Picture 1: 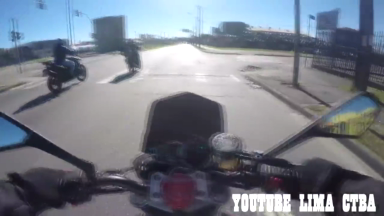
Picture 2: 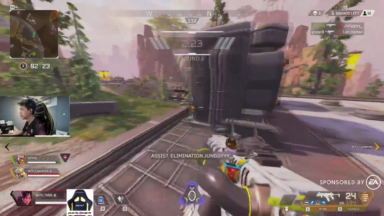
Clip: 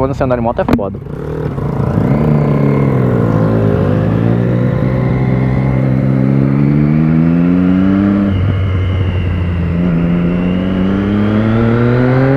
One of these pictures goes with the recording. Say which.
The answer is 1